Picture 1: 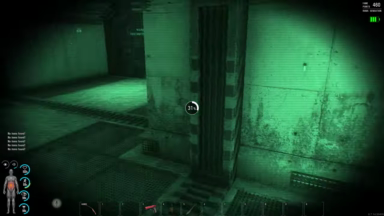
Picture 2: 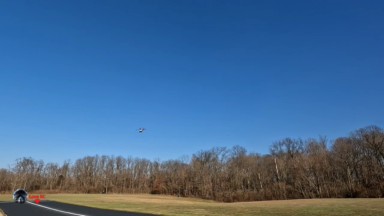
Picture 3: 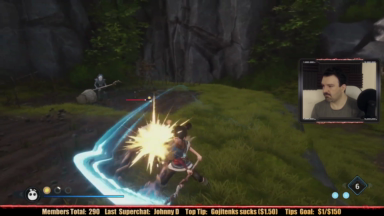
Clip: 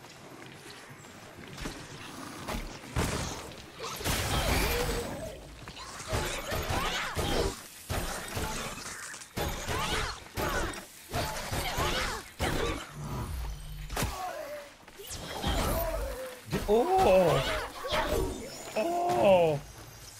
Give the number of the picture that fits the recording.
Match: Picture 3